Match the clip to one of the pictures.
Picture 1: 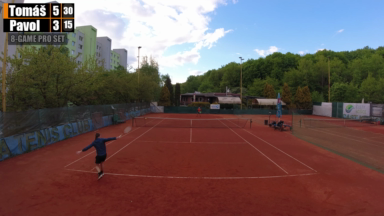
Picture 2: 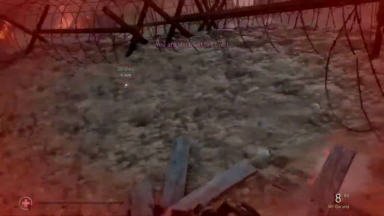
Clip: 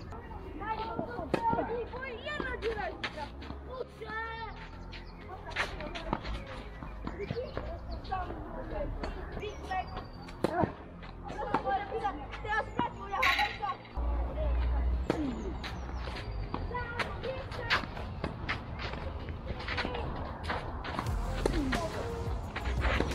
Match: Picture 1